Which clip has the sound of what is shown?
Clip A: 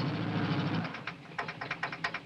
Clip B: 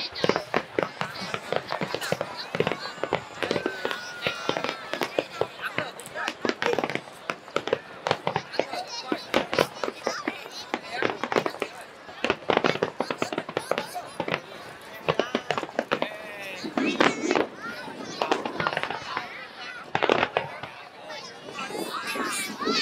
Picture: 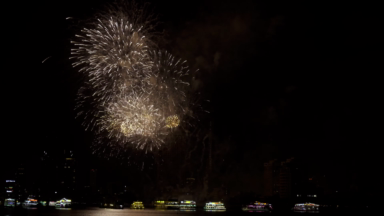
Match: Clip B